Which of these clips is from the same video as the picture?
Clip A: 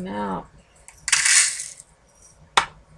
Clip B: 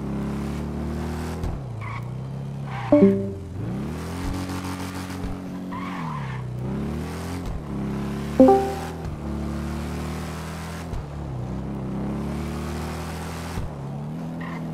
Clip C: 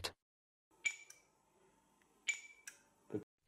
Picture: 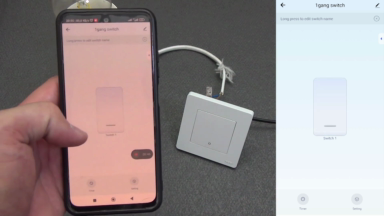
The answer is C